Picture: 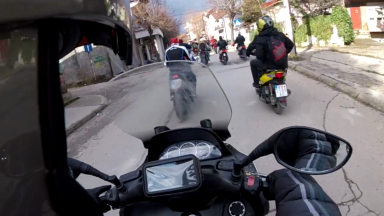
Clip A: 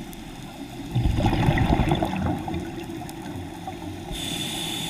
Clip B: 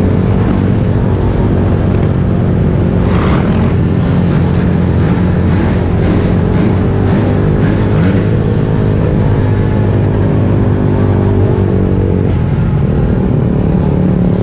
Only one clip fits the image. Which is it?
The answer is B